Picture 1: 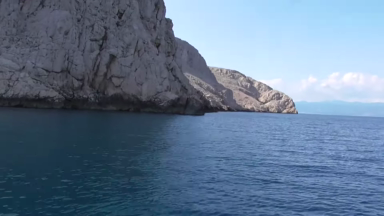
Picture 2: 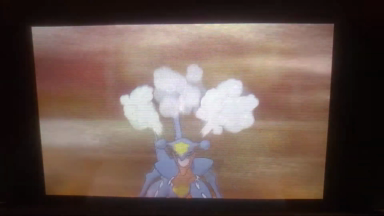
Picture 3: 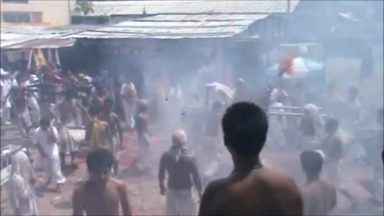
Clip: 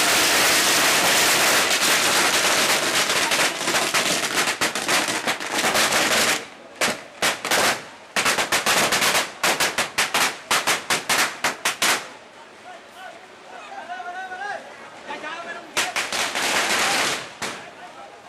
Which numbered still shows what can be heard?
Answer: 3